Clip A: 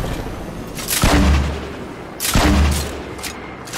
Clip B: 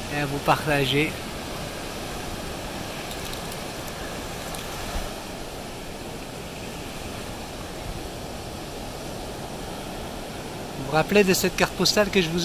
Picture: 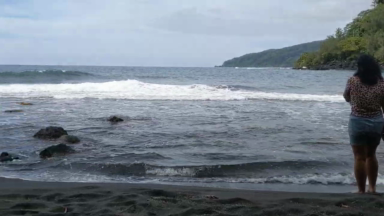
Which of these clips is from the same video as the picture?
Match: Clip B